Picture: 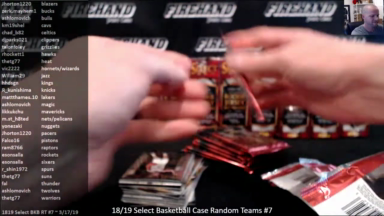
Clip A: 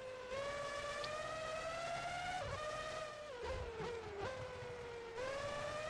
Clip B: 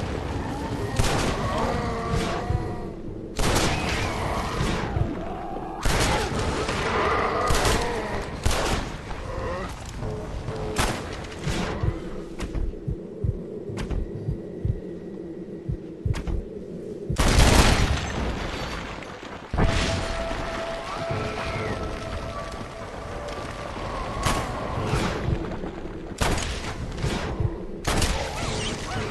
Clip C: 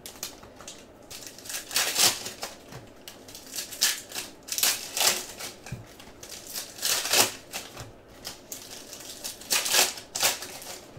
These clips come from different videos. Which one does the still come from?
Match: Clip C